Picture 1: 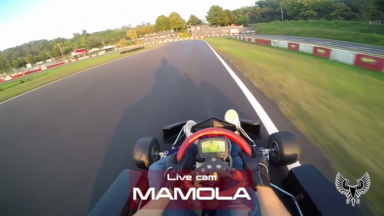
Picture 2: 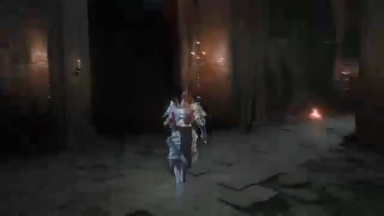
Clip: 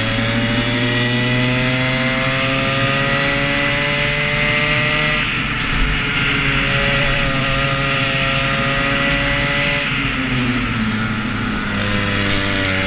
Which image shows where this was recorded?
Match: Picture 1